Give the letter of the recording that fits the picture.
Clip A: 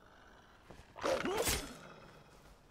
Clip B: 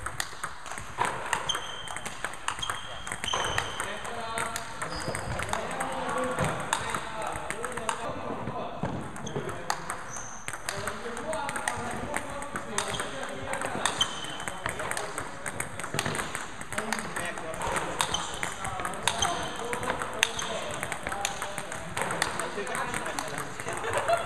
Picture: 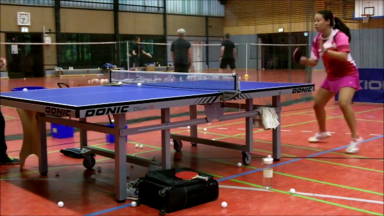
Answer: B